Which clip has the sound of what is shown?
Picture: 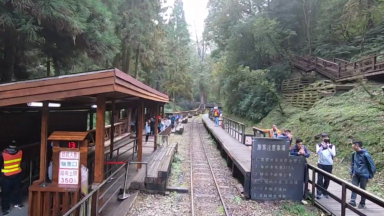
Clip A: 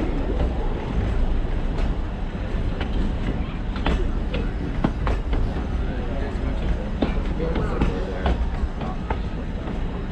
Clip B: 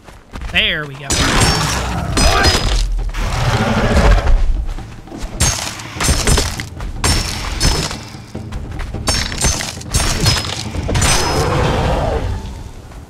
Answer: A